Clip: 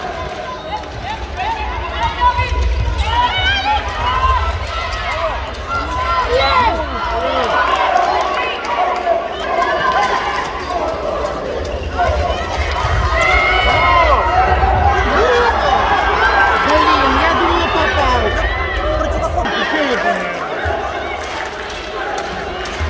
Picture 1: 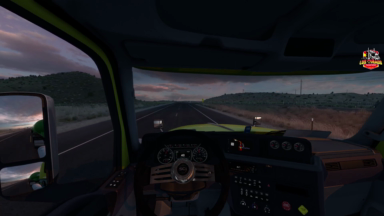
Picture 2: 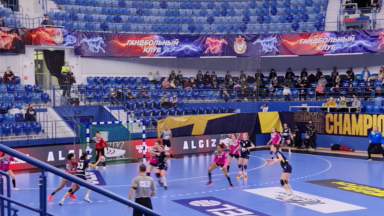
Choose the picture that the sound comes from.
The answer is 2